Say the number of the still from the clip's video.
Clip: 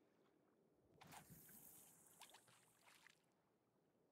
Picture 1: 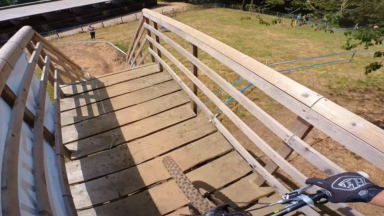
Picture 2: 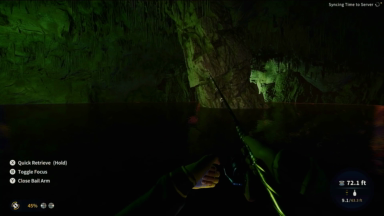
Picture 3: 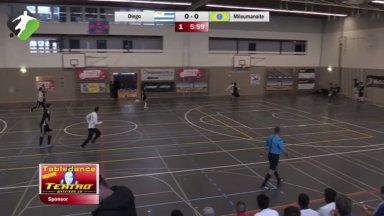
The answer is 2